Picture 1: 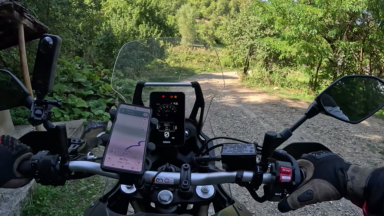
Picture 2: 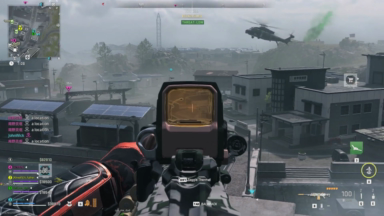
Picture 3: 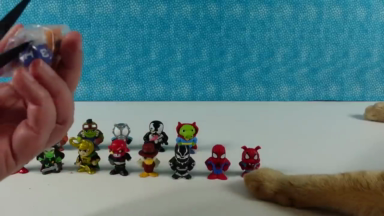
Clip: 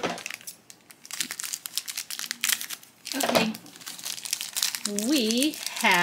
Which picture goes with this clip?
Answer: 3